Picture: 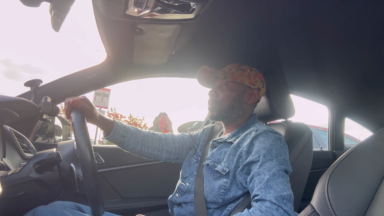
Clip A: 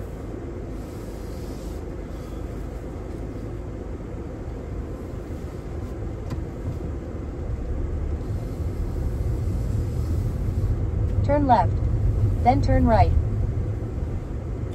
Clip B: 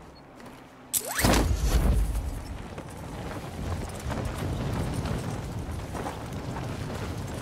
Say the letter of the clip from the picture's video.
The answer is A